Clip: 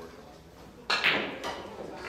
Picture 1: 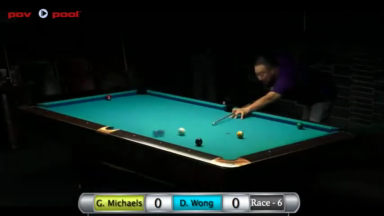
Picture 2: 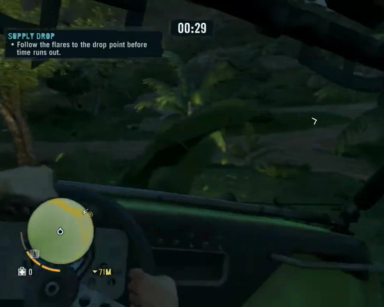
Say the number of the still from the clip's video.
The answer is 1